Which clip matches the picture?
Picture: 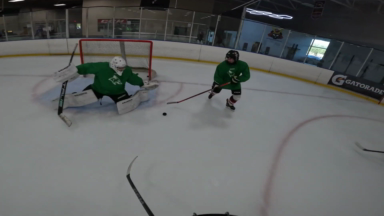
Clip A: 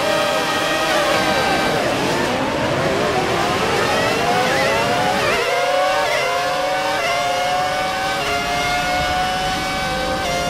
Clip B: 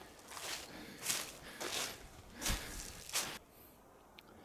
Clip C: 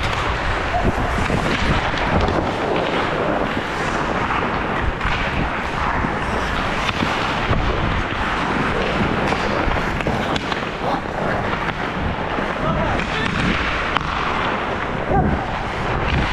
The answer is C